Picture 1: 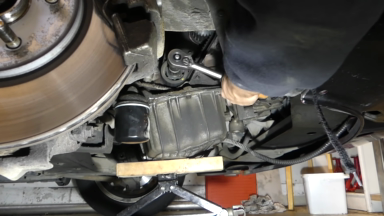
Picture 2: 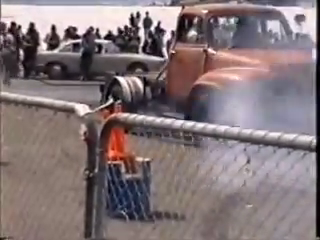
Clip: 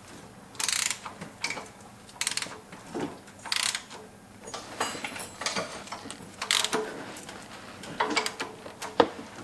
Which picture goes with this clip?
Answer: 1